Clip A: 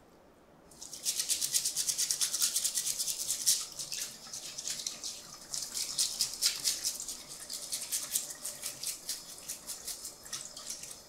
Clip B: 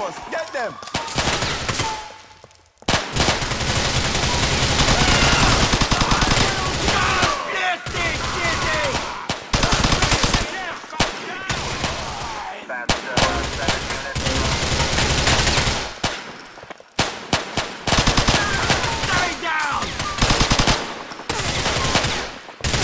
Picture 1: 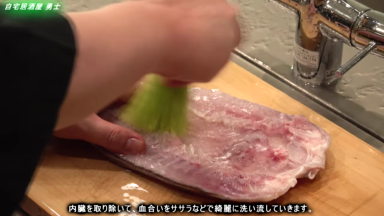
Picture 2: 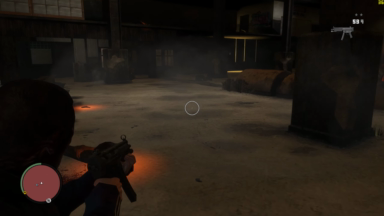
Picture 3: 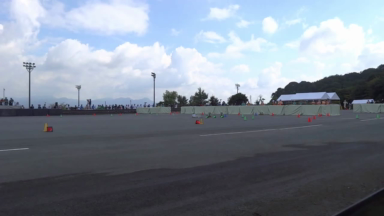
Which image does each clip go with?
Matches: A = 1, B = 2